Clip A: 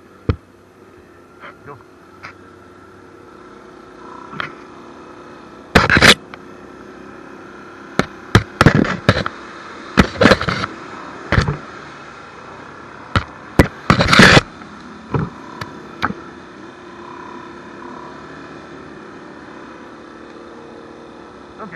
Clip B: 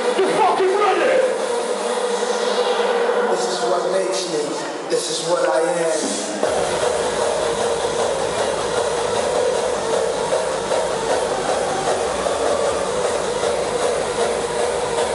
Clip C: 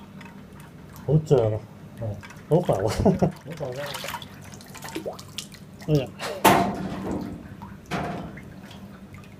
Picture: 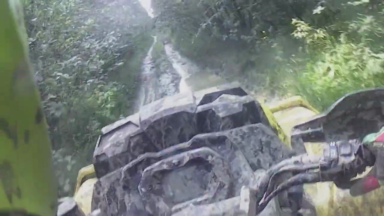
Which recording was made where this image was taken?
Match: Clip A